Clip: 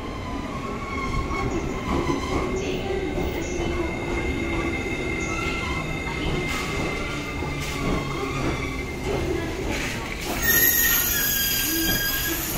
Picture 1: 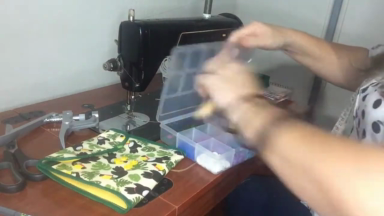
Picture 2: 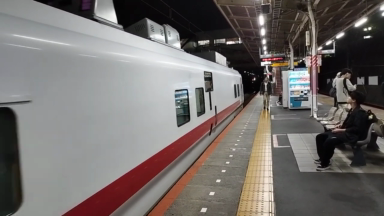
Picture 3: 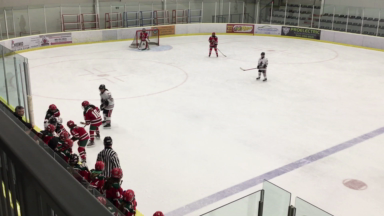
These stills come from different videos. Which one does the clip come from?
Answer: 2